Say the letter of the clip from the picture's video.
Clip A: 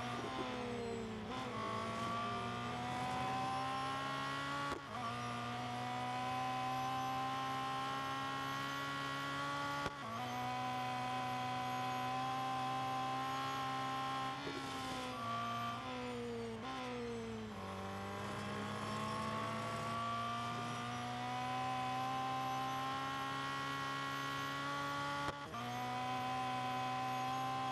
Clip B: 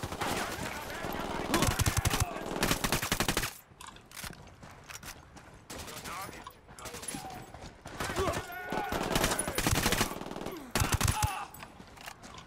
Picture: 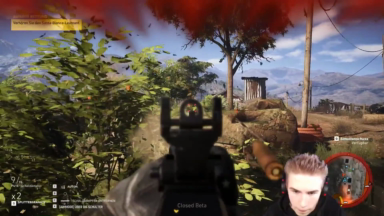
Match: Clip B